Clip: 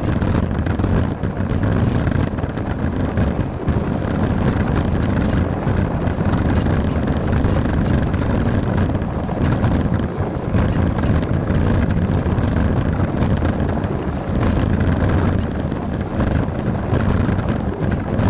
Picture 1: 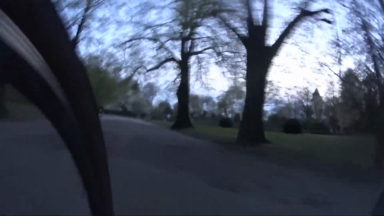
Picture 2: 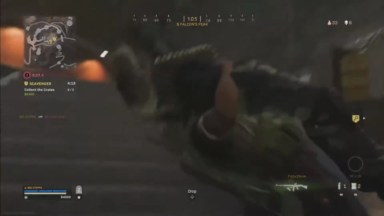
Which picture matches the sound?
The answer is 1